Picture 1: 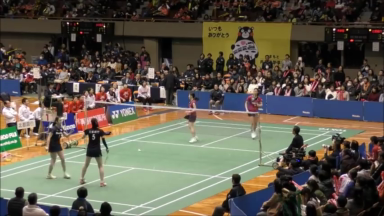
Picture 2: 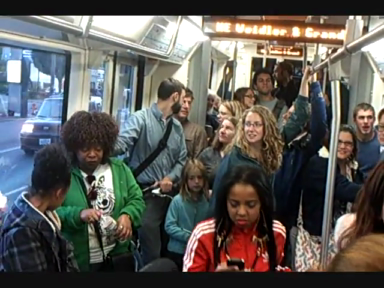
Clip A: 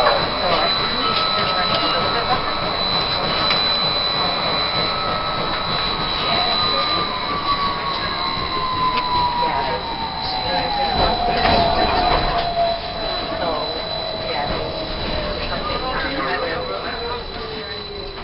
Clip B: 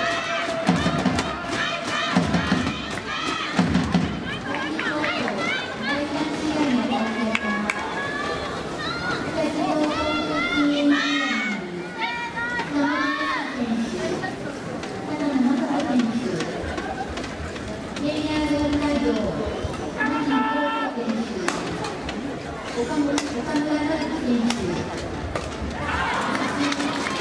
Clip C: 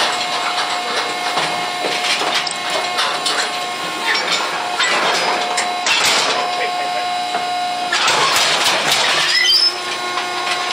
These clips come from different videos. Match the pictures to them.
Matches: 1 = B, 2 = A